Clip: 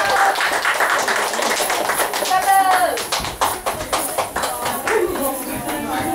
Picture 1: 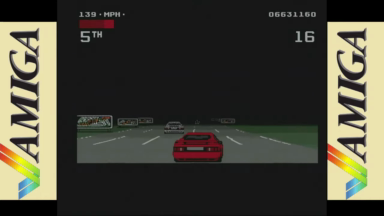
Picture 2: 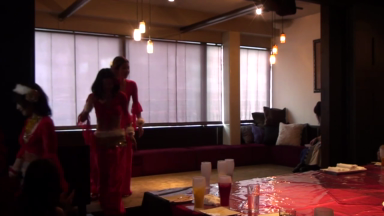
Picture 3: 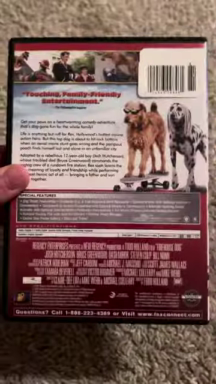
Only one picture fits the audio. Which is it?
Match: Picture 2